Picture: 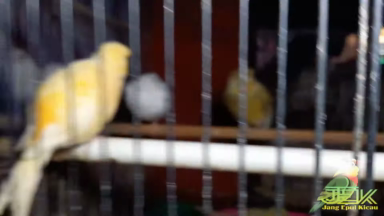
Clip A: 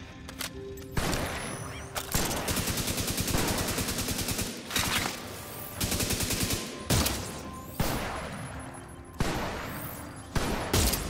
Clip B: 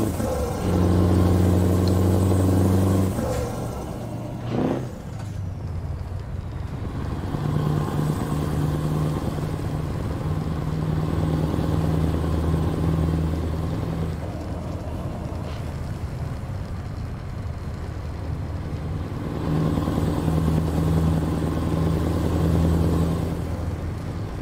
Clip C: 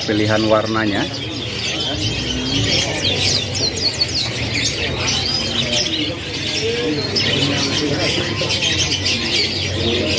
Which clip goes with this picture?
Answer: C